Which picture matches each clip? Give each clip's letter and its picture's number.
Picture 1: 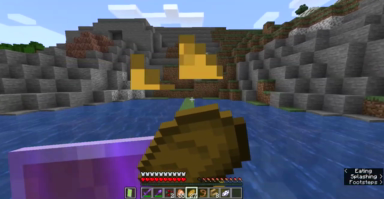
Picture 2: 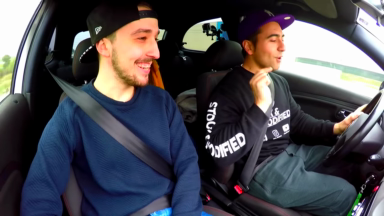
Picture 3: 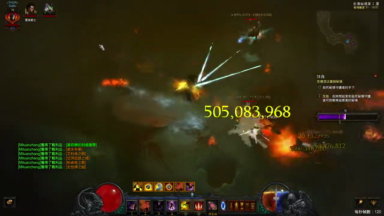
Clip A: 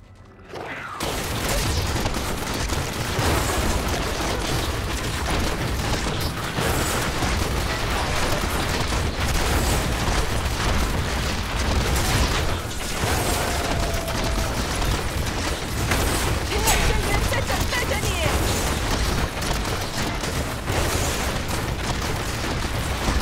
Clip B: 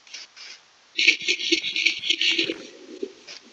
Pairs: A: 3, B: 1